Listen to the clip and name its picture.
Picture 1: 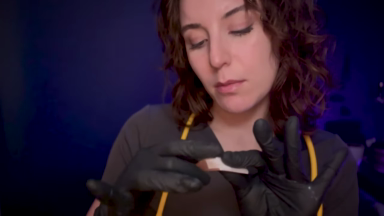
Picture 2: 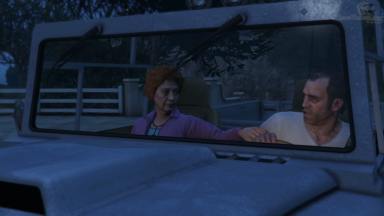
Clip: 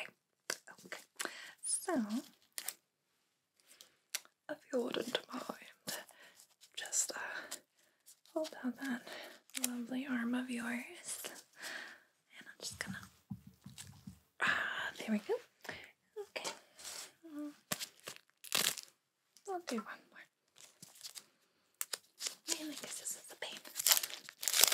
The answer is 1